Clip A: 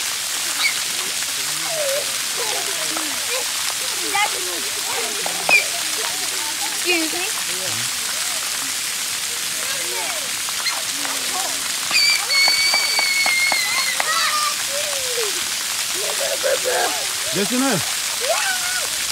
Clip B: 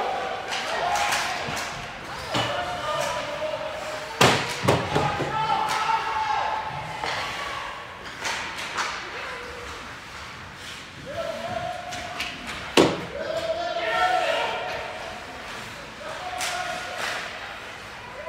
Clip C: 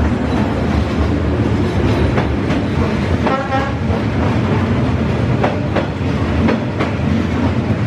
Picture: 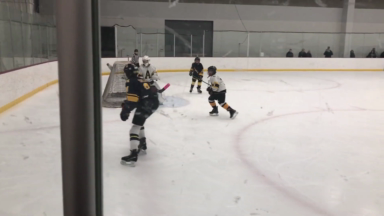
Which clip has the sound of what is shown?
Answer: B